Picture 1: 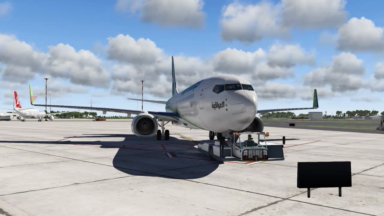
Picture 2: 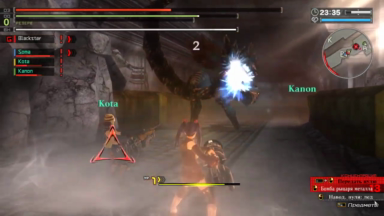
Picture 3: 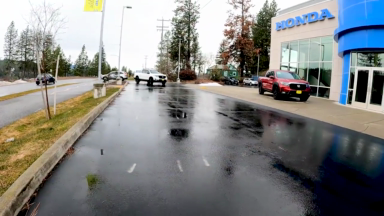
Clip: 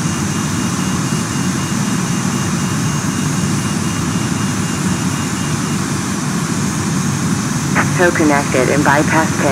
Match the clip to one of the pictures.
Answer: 1